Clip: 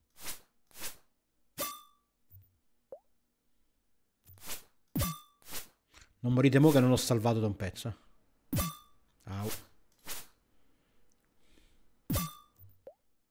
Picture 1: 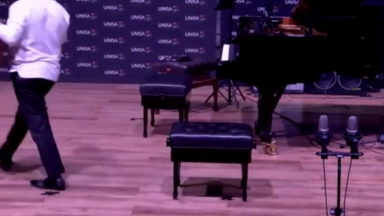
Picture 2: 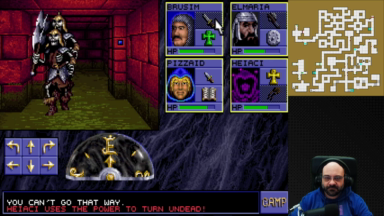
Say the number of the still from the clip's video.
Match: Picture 2